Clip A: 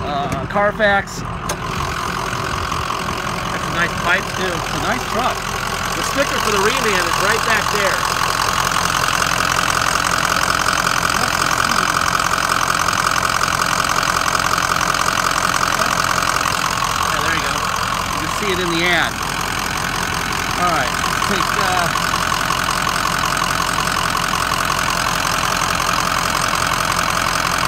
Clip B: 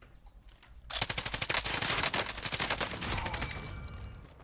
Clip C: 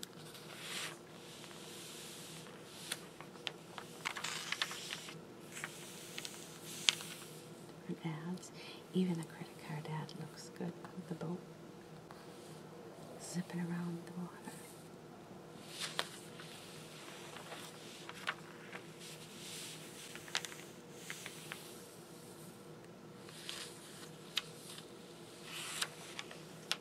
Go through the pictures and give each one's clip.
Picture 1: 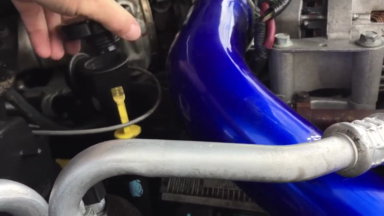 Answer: A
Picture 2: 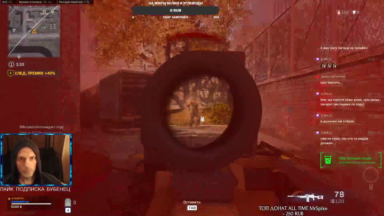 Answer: B